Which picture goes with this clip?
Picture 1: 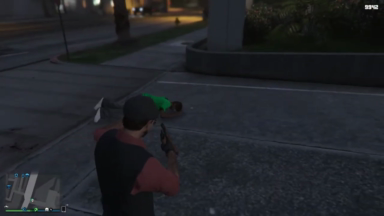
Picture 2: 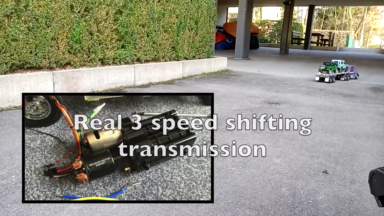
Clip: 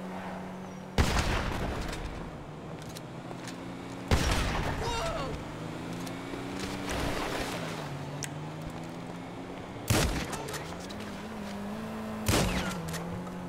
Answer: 1